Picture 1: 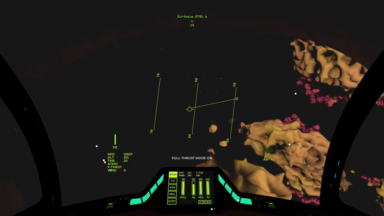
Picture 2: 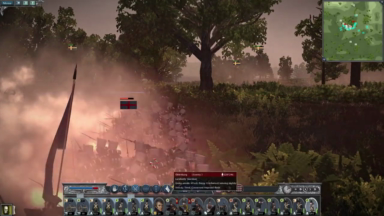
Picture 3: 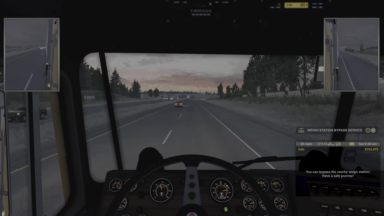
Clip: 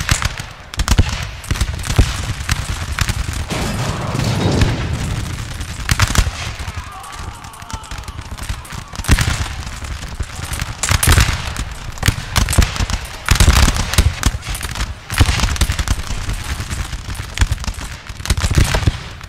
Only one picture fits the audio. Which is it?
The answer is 2